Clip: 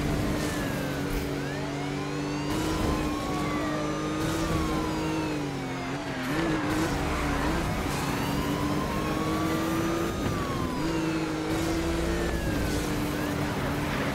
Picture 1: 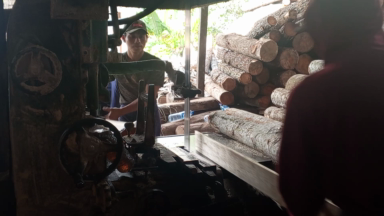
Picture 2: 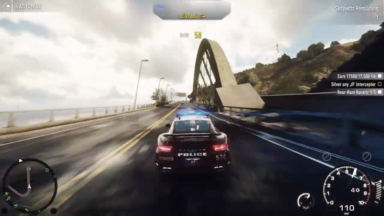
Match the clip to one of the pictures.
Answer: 2